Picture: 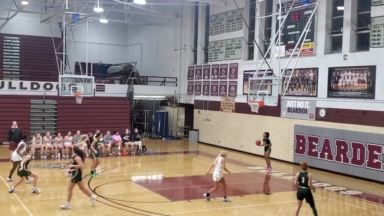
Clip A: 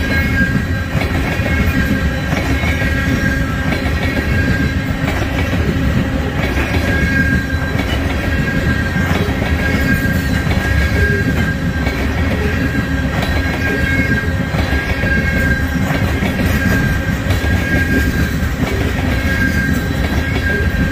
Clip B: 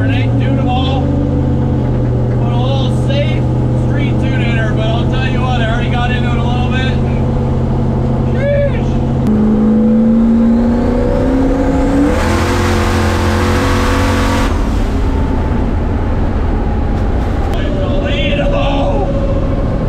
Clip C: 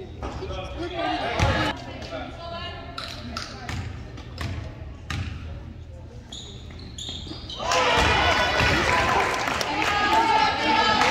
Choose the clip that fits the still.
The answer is C